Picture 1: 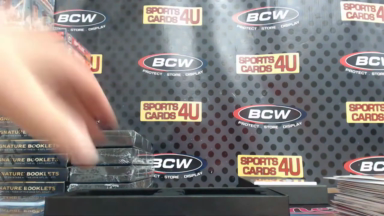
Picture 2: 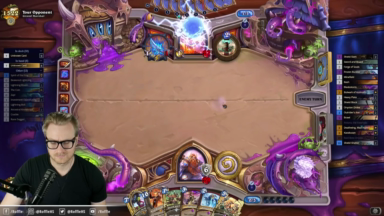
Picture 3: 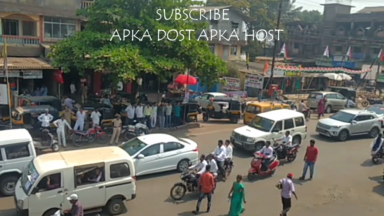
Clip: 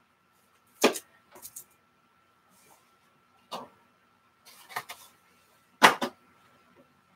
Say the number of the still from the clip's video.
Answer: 1